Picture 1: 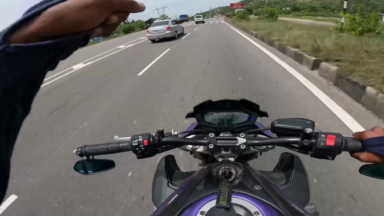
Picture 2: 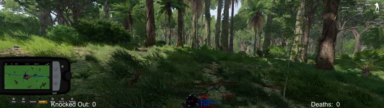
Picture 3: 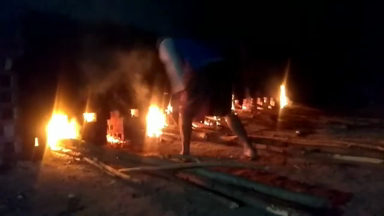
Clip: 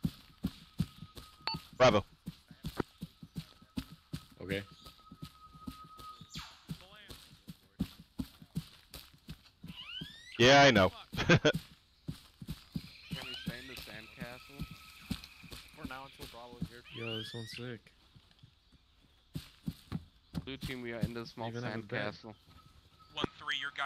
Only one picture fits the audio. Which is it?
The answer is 2